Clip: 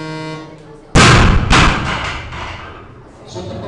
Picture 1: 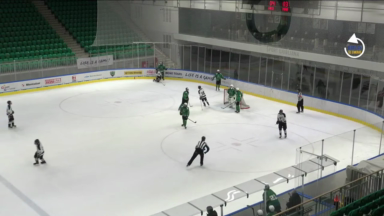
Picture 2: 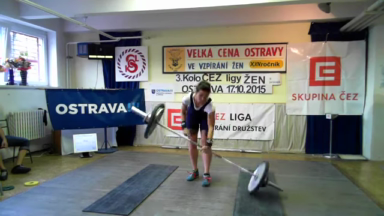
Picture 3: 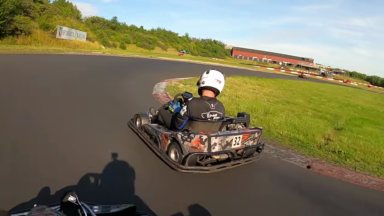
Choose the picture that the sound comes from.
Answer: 2